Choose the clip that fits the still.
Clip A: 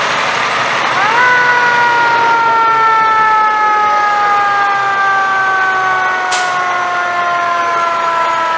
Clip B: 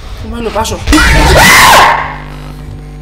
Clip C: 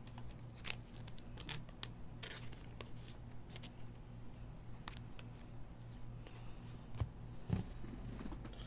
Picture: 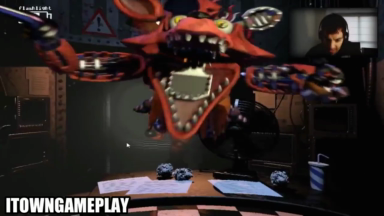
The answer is B